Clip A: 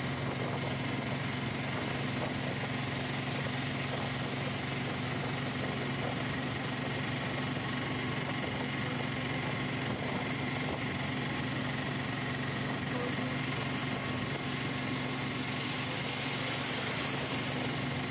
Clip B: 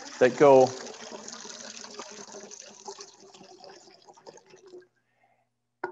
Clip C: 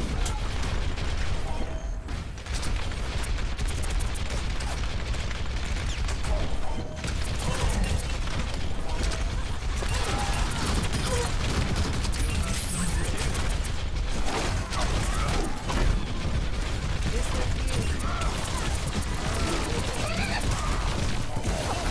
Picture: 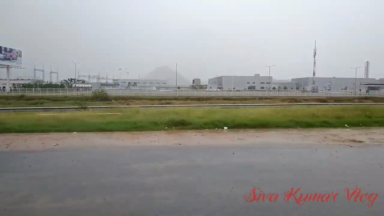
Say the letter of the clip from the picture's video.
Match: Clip A